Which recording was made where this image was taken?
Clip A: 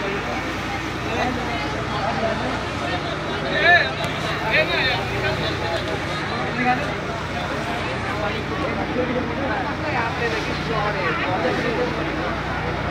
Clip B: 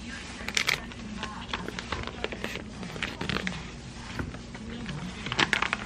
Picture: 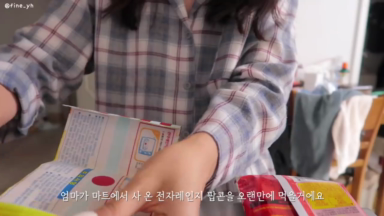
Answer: B